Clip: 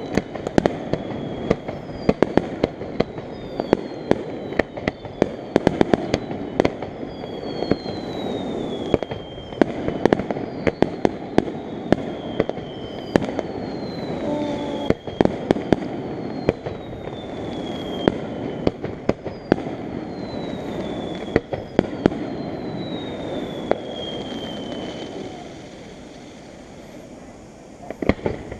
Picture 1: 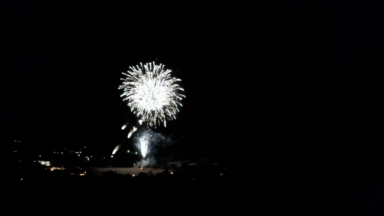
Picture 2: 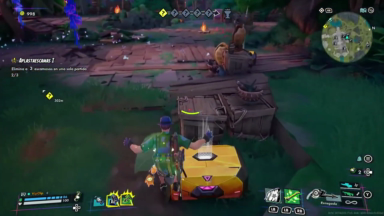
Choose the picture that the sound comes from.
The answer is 1